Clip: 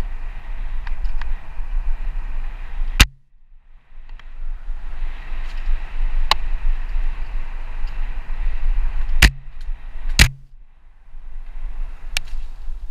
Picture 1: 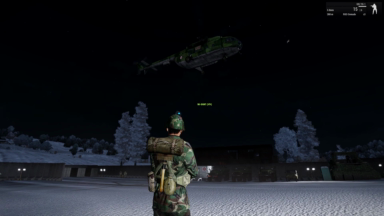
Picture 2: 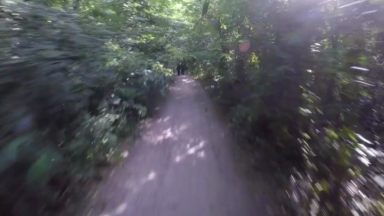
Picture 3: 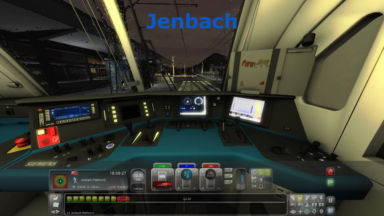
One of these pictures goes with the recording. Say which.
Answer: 2